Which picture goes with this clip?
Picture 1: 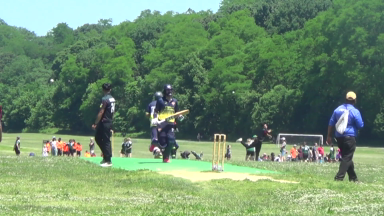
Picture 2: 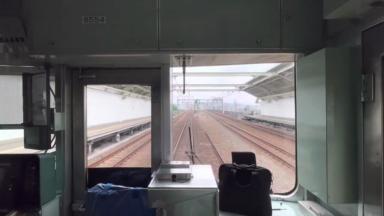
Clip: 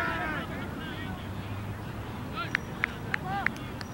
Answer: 1